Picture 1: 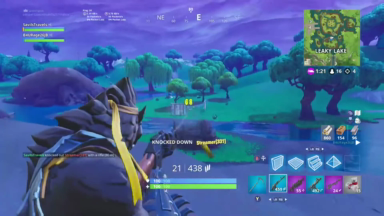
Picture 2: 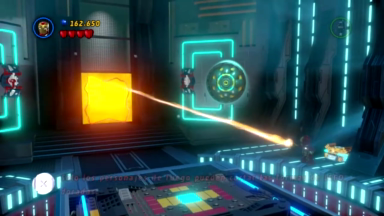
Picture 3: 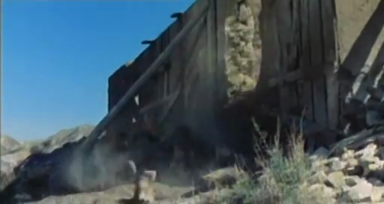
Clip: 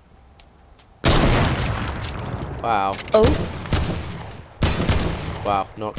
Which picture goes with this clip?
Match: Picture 1